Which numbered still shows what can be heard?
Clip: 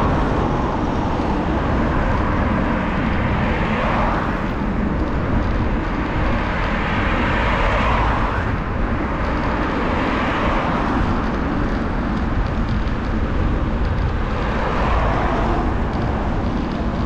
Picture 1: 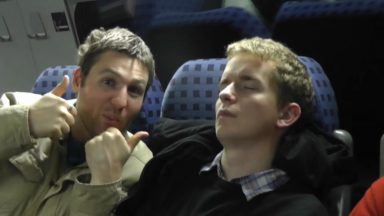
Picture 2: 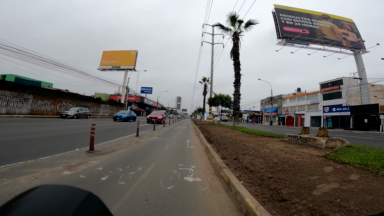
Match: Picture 2